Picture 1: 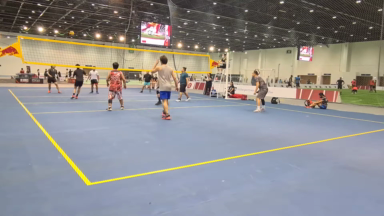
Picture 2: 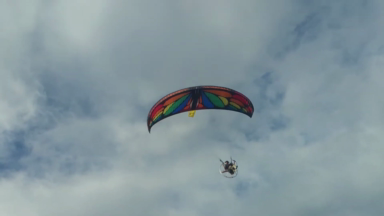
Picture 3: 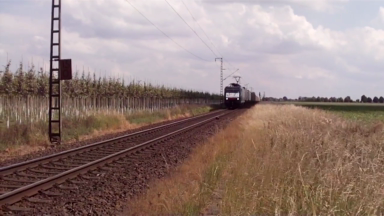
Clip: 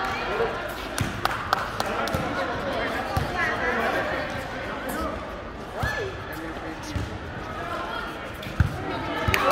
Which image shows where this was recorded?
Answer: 1